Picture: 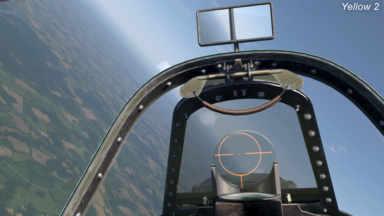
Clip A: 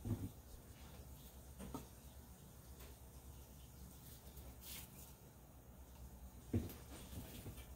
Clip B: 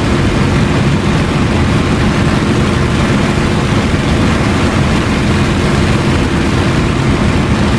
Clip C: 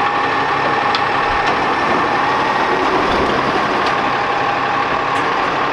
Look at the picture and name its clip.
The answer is B